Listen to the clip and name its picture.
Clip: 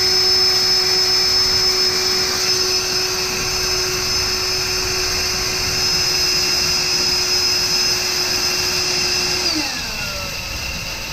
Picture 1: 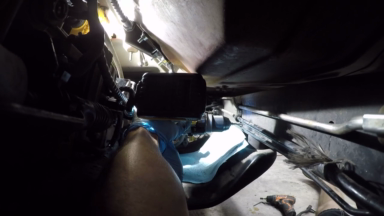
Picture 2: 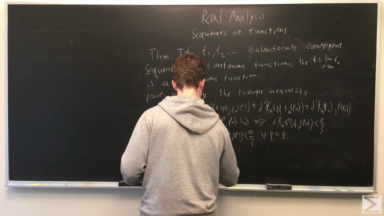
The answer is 1